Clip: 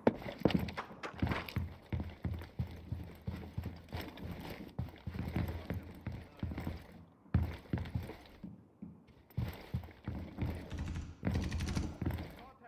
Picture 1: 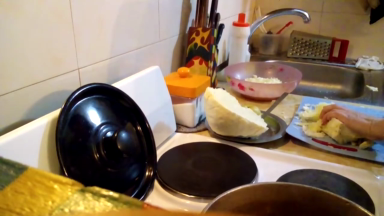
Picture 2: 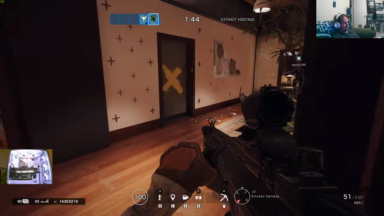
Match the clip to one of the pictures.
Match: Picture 2